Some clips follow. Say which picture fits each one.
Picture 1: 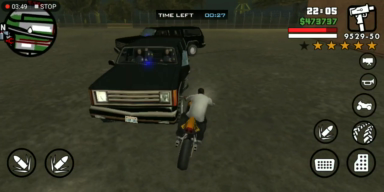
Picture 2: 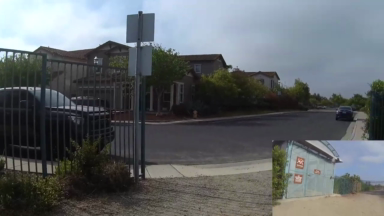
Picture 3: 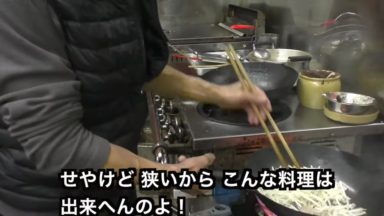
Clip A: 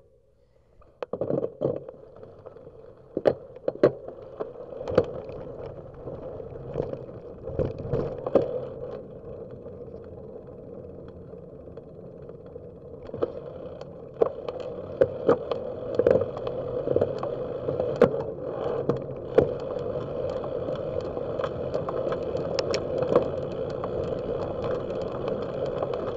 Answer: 2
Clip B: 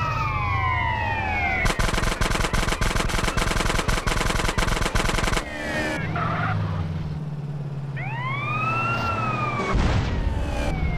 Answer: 1